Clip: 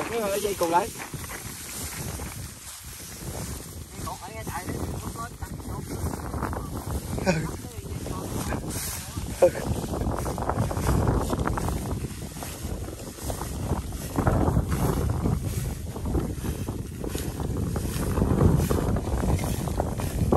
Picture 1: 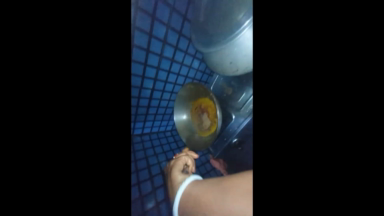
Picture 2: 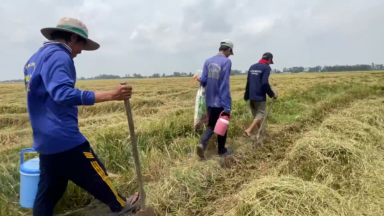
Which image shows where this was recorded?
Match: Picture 2